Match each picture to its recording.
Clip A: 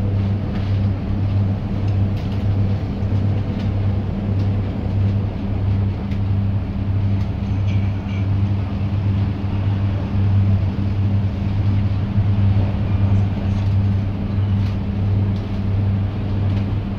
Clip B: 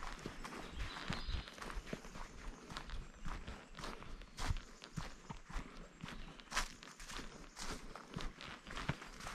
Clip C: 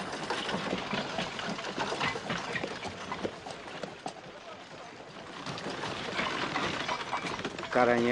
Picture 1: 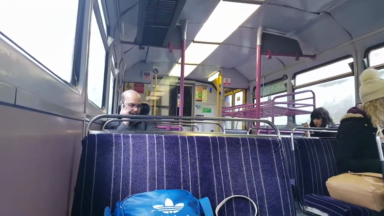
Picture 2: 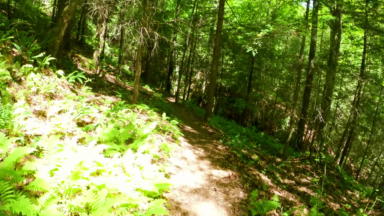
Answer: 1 A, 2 B